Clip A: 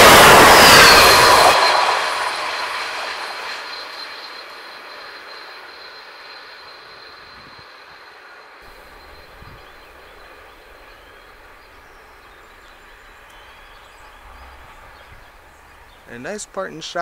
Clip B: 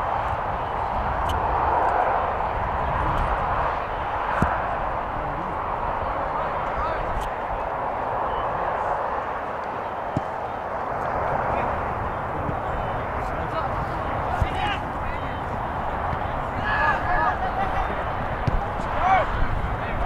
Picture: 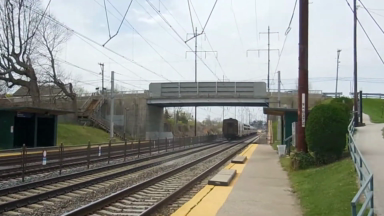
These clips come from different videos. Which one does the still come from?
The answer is A